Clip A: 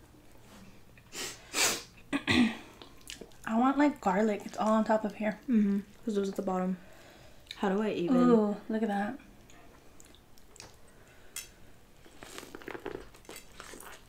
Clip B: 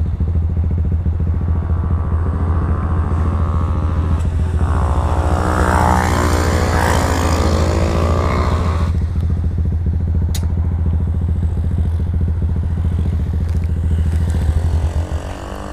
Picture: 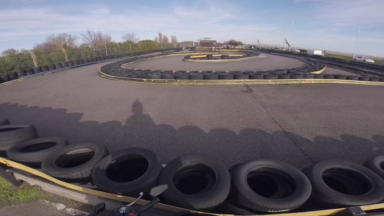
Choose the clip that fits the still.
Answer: B